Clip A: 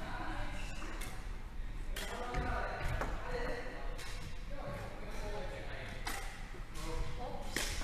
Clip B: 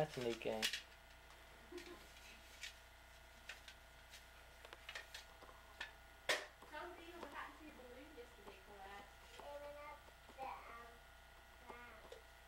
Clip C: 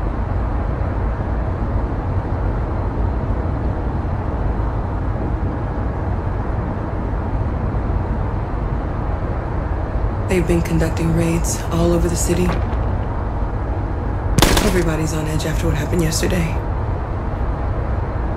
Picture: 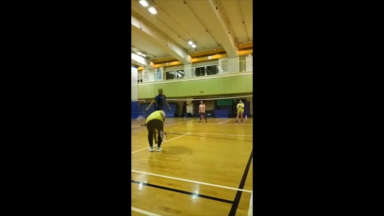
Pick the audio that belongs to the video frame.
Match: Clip A